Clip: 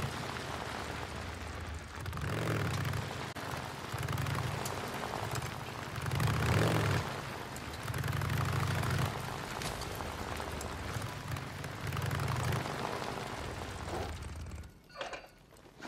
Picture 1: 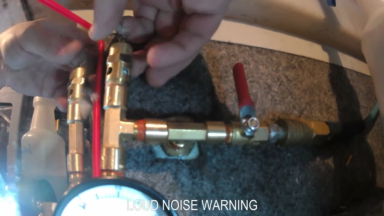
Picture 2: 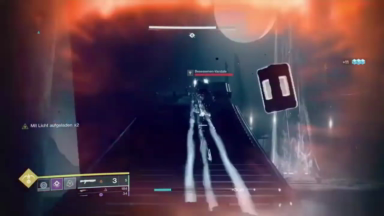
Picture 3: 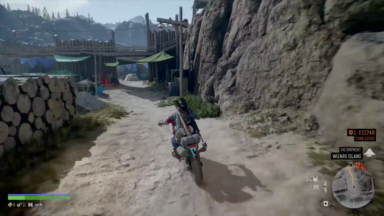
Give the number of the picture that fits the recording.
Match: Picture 3